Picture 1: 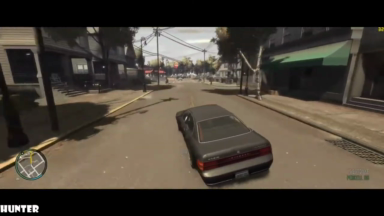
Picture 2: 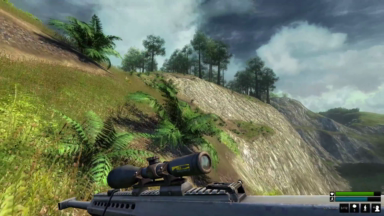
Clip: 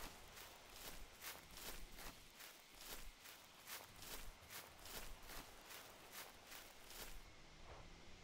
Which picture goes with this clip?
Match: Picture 2